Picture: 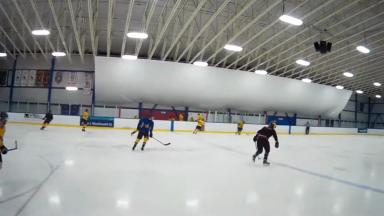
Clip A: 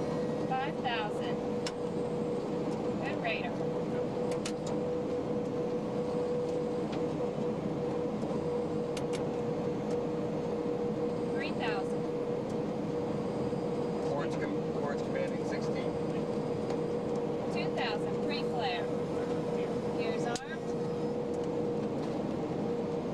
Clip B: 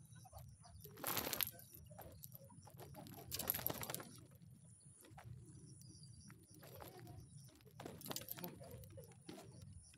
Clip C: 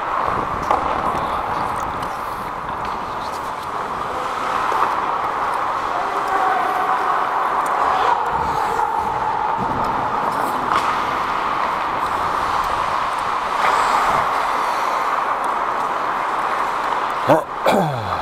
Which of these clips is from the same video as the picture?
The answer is C